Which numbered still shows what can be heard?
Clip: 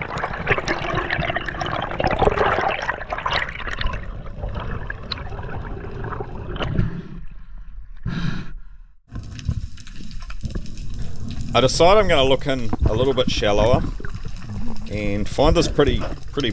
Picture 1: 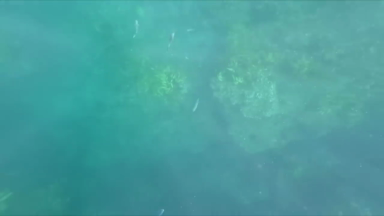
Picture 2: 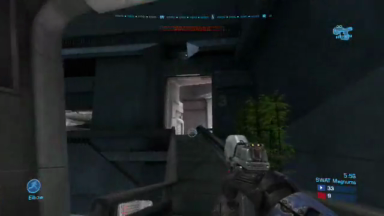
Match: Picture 1